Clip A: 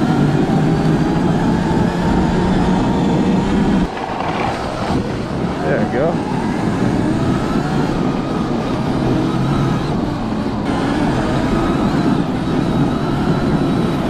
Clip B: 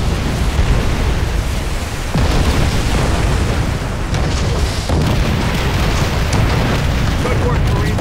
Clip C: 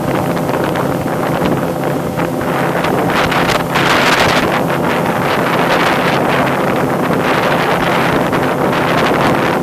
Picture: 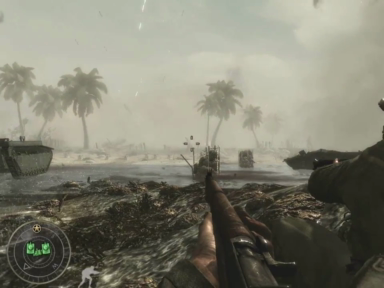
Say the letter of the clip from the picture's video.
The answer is B